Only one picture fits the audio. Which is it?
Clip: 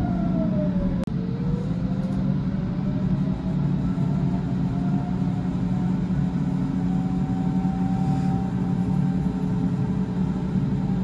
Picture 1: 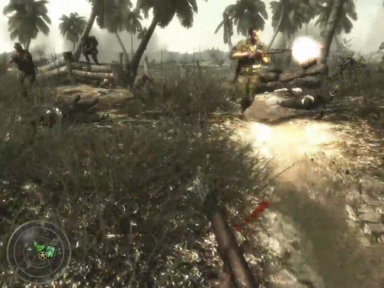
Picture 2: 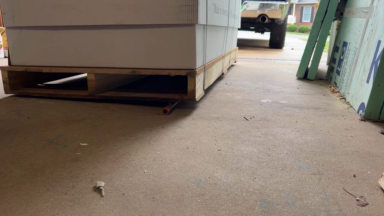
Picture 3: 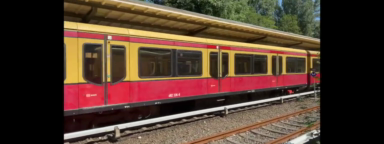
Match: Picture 3